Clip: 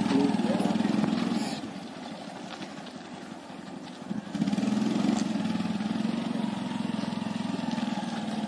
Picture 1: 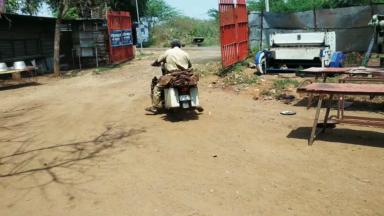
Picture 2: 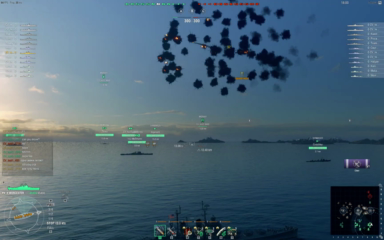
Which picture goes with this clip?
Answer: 1